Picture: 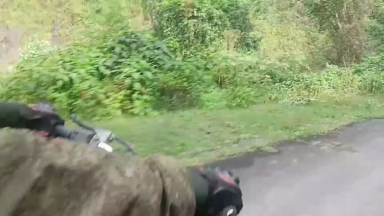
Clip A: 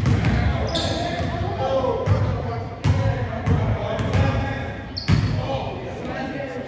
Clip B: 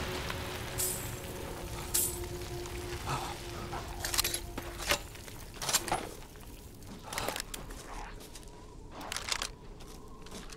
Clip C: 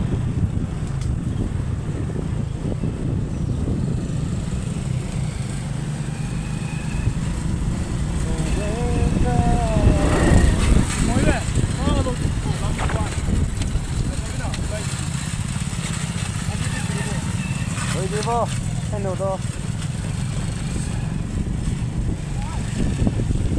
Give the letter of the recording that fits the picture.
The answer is C